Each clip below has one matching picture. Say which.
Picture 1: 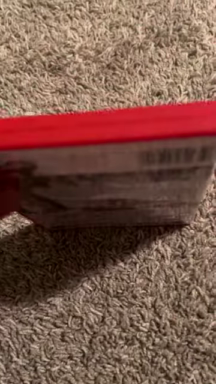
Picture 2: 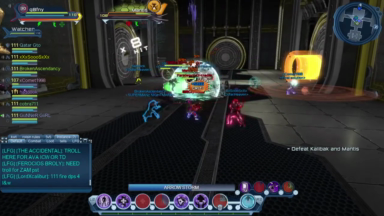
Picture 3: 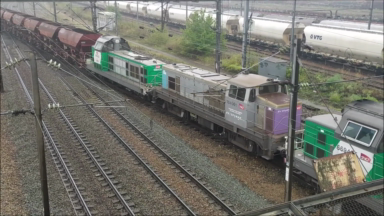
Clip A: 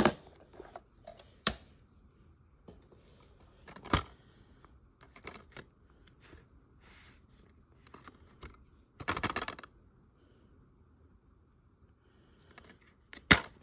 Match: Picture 1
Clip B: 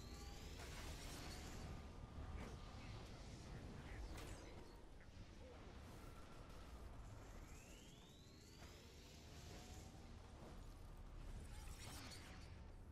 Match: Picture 2